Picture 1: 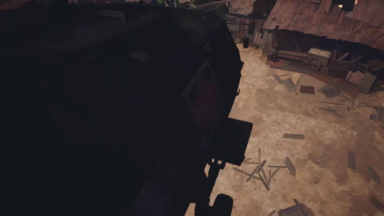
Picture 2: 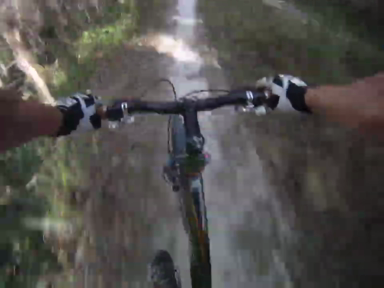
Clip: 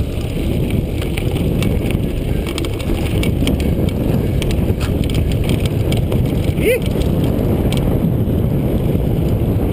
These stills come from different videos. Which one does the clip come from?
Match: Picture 2